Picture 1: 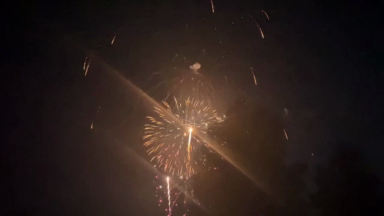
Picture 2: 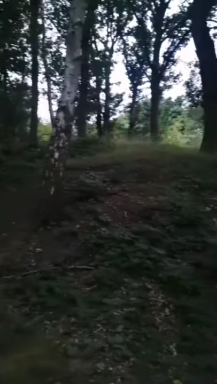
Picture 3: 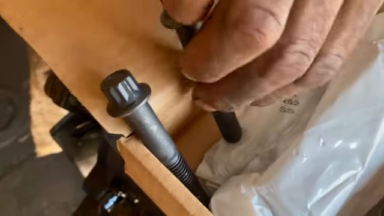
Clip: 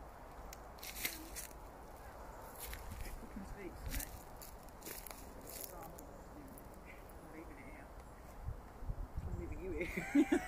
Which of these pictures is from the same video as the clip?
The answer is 2